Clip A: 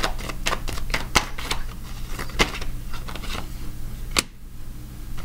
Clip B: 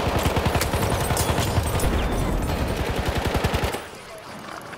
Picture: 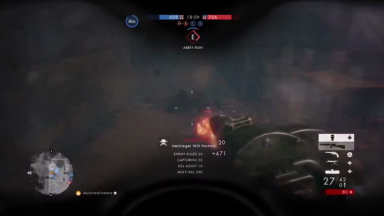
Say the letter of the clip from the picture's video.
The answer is B